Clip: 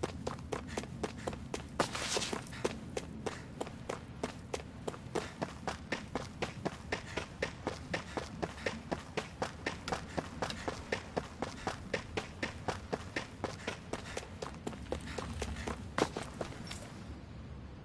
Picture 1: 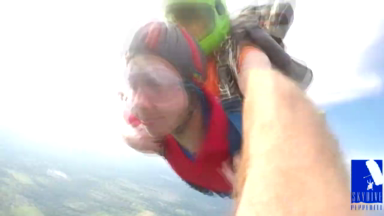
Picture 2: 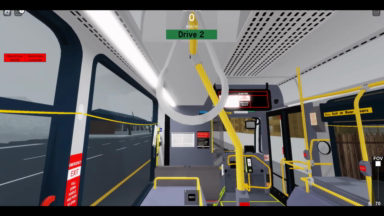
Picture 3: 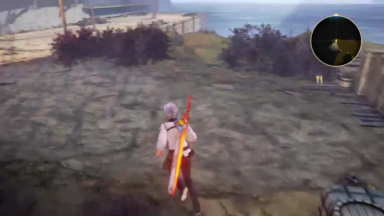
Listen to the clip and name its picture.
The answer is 3